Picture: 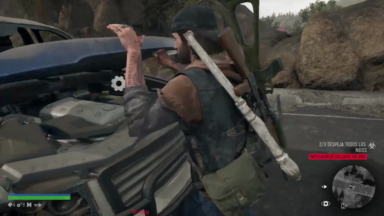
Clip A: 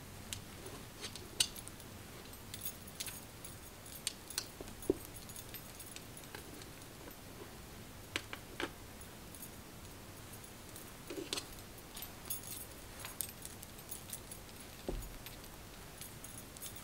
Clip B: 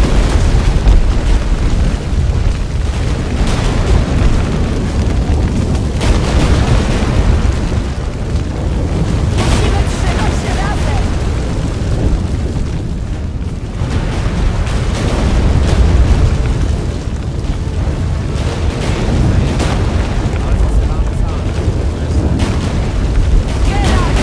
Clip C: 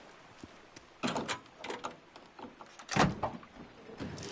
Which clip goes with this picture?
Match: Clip C